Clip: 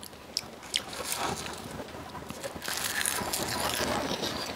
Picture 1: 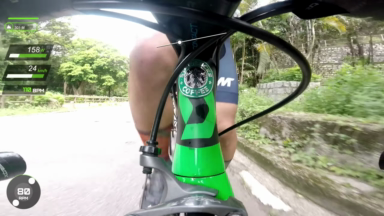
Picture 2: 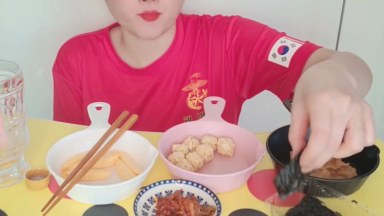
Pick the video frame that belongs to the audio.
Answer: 2